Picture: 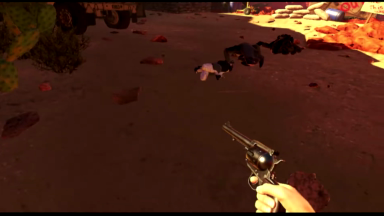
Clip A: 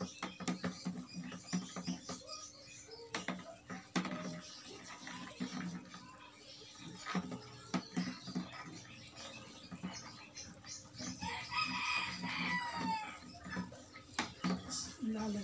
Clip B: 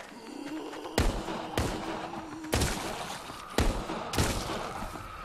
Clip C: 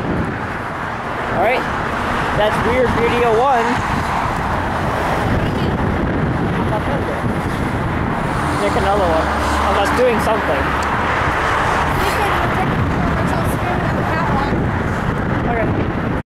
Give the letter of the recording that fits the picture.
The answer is B